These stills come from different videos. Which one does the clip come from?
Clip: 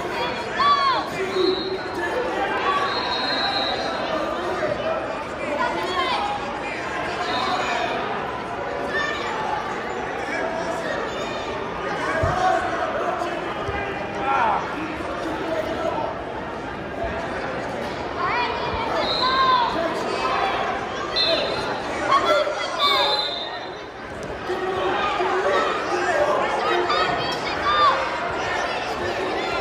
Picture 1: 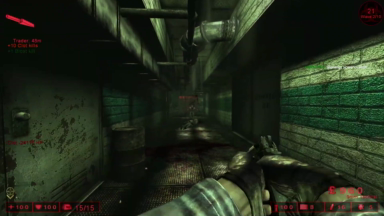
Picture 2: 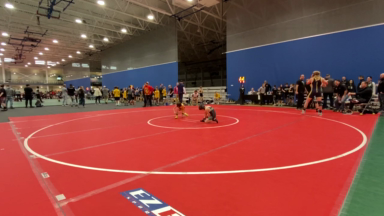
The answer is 2